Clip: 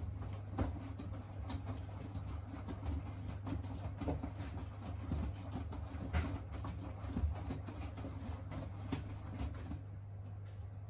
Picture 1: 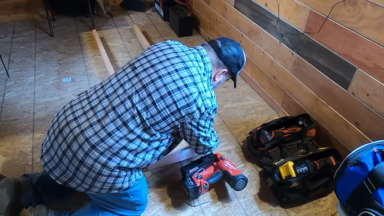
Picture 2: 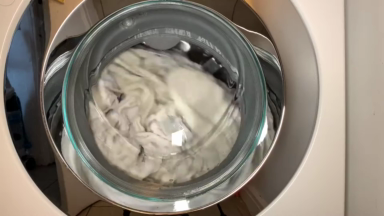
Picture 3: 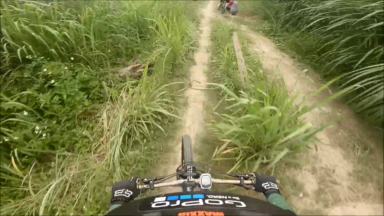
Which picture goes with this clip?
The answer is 2